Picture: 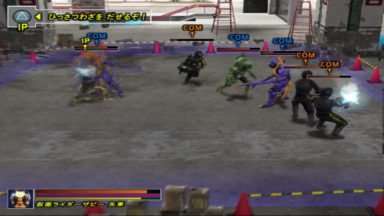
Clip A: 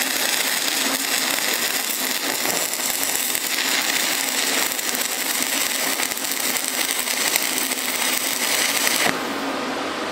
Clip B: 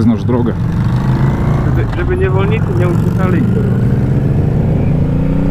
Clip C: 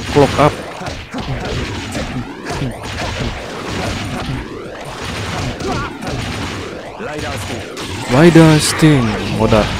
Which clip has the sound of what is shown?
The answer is C